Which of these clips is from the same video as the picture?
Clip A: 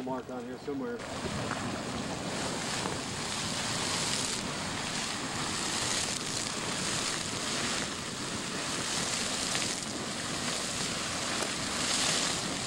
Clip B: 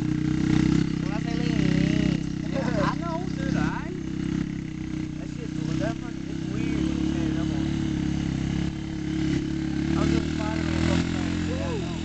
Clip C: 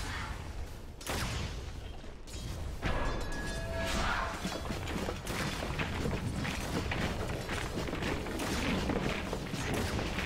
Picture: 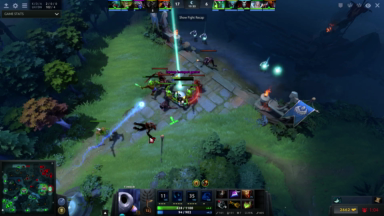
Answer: C